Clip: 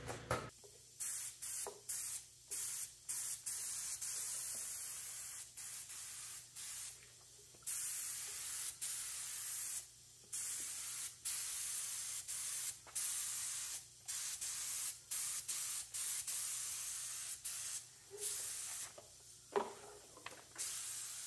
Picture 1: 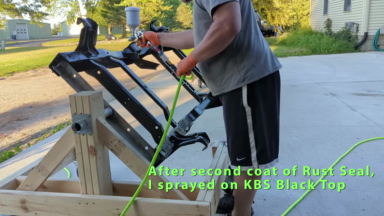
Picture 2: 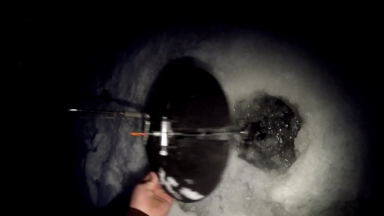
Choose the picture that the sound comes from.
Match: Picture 1